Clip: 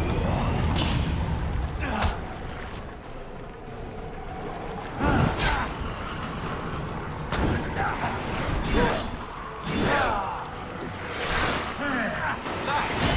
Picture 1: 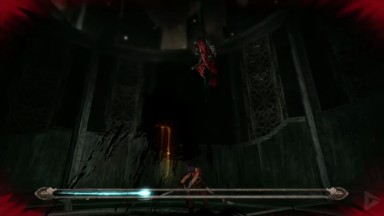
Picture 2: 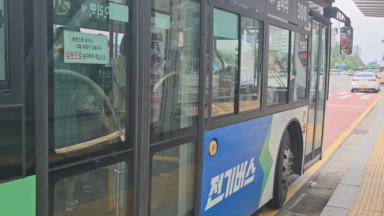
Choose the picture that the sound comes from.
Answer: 1